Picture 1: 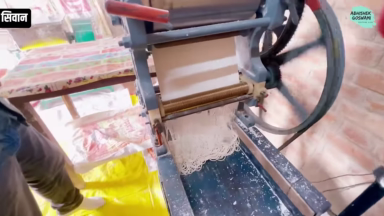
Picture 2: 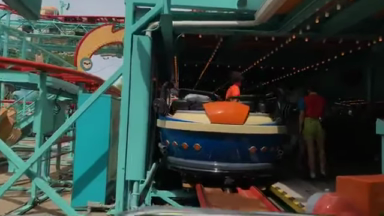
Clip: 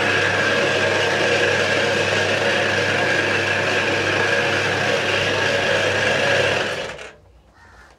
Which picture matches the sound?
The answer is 1